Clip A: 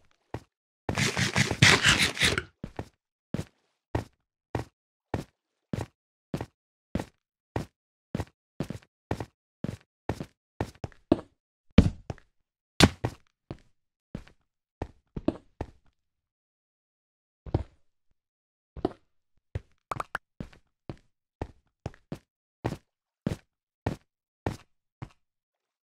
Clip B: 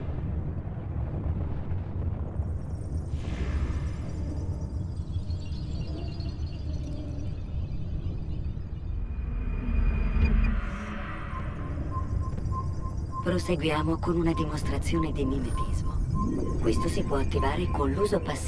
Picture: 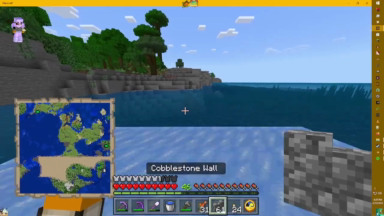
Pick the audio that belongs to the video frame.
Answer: A